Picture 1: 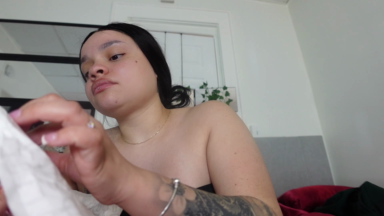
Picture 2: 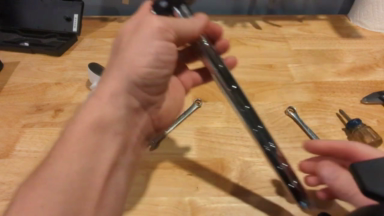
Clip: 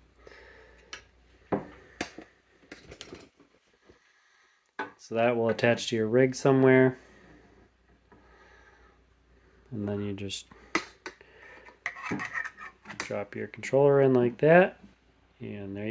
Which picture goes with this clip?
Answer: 2